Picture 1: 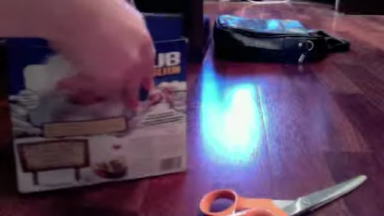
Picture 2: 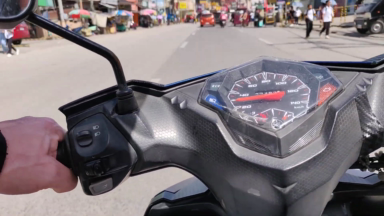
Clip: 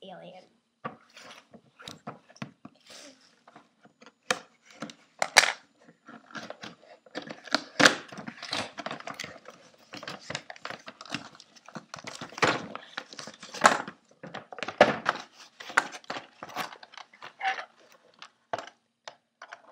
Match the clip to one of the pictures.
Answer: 1